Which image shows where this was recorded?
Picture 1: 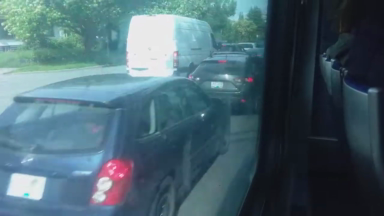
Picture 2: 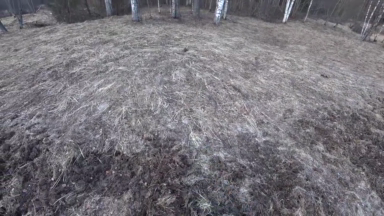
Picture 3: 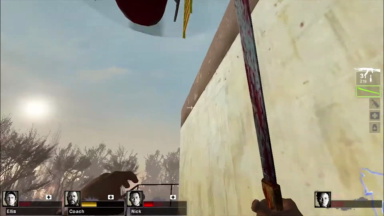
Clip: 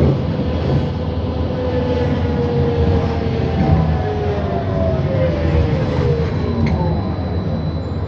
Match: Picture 1